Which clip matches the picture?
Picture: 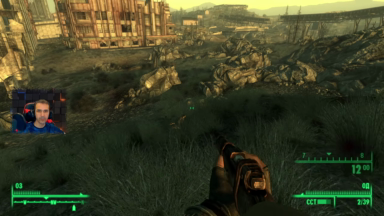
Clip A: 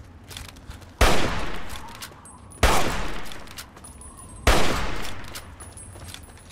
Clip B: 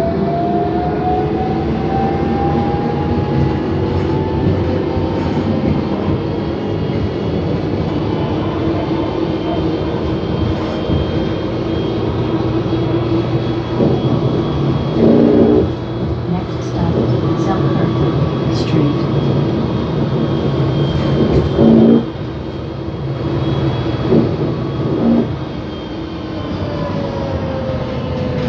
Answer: A